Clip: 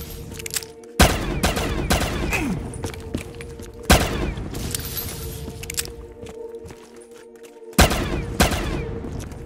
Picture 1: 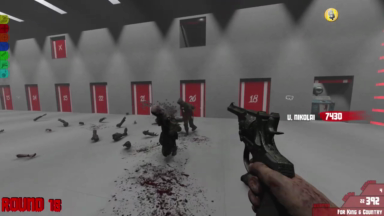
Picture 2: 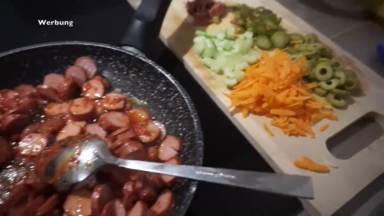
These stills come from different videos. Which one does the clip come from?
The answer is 1